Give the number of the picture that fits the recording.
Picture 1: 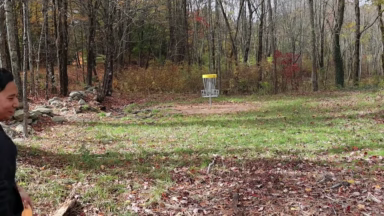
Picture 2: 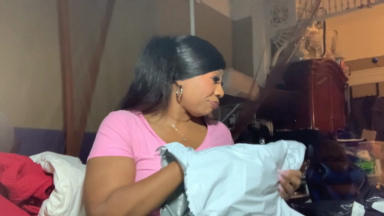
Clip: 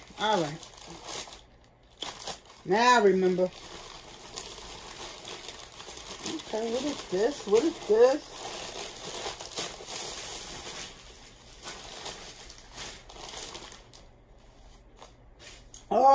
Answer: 2